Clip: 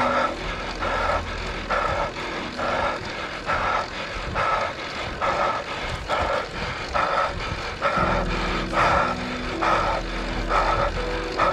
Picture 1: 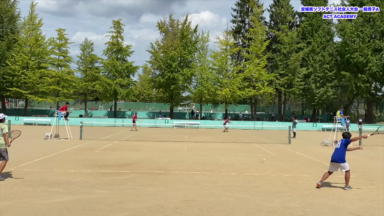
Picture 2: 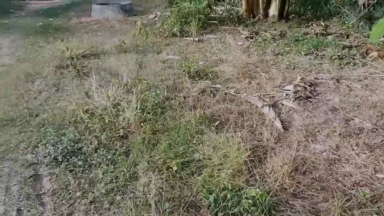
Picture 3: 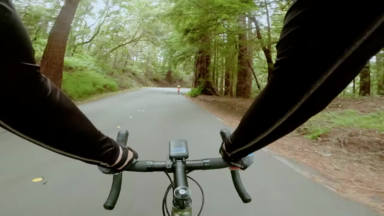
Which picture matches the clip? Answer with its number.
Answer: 3